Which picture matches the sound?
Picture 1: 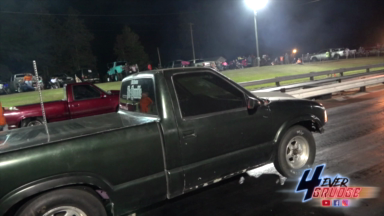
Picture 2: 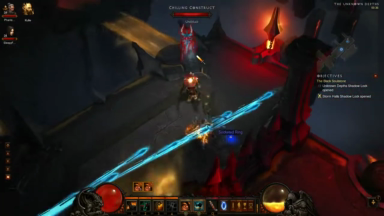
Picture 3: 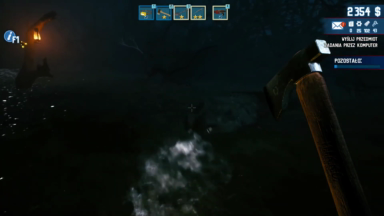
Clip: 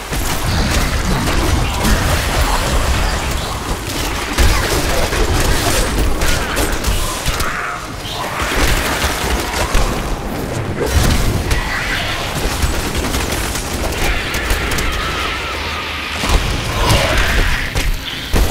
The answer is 2